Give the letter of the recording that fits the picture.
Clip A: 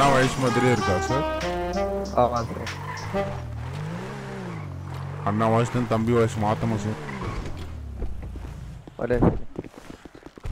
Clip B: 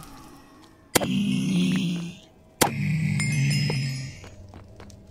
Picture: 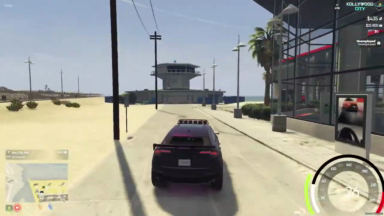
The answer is A